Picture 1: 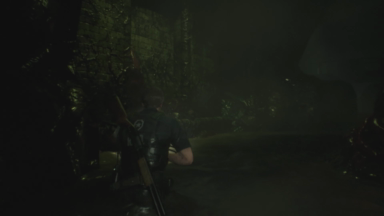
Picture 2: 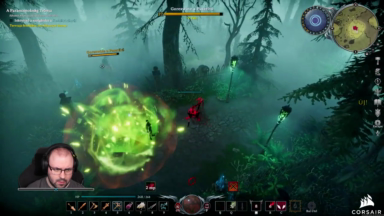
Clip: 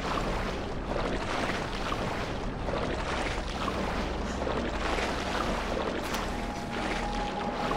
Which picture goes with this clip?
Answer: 1